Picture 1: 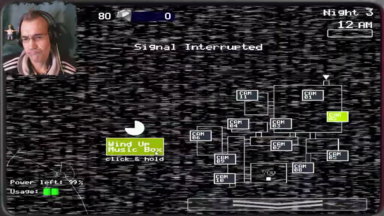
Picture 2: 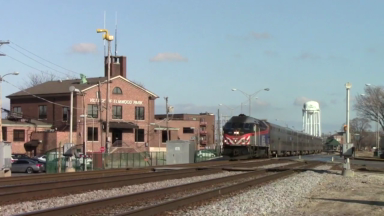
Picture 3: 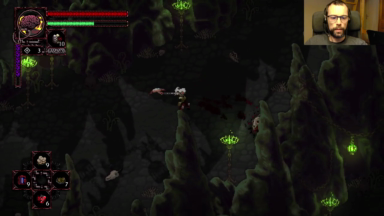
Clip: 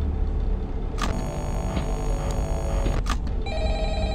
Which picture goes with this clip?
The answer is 1